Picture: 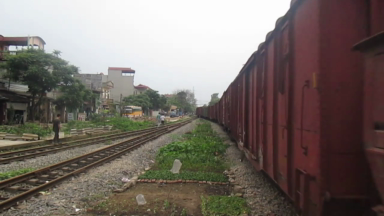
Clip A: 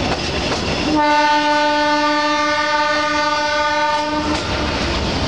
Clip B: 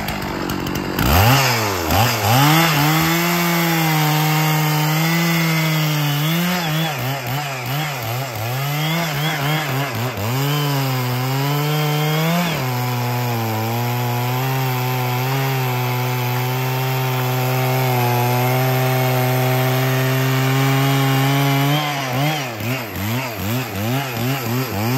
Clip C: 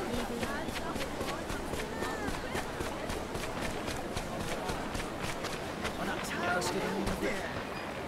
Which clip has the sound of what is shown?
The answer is A